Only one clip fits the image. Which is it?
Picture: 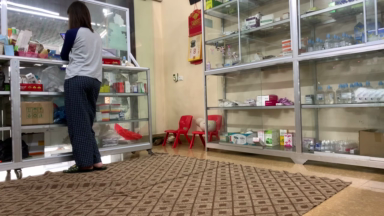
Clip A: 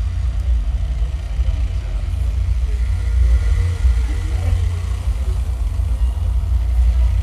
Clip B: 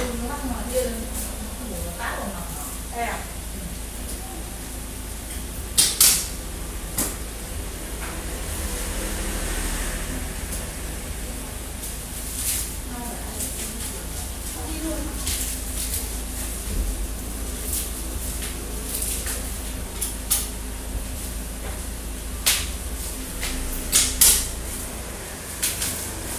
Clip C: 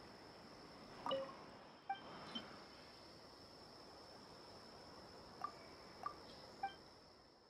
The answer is B